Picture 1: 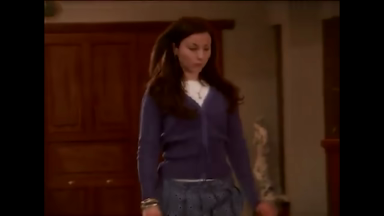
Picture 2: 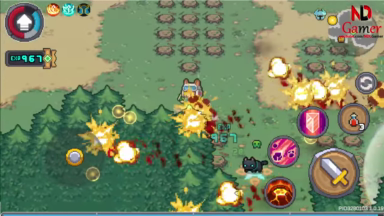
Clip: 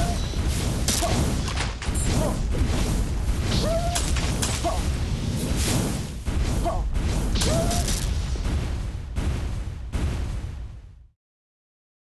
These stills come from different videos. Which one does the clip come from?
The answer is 2